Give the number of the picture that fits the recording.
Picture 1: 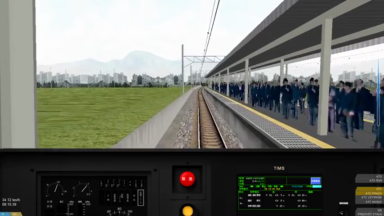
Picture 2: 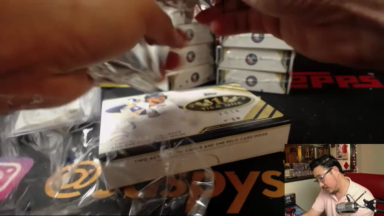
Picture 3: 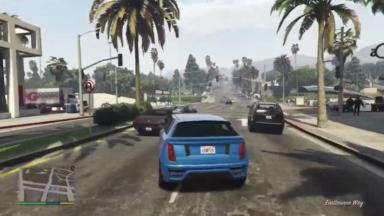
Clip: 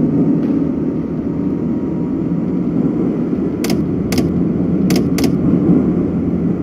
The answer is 1